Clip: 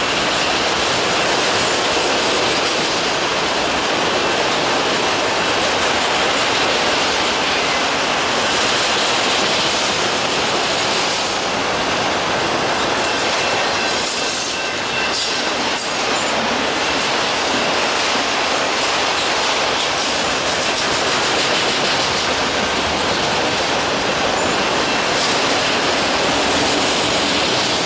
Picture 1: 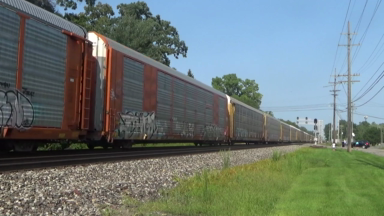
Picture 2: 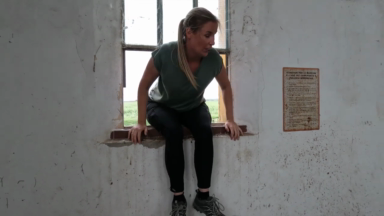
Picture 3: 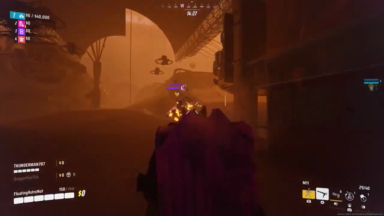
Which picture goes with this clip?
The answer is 1